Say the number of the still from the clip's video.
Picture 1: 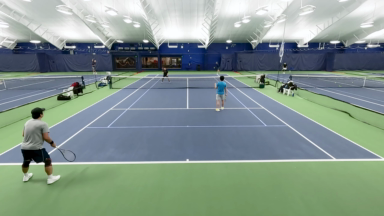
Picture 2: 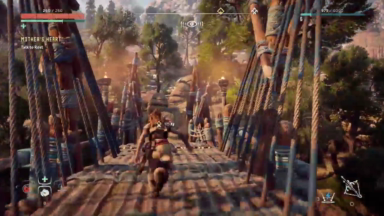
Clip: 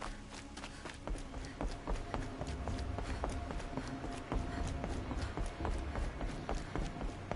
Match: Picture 2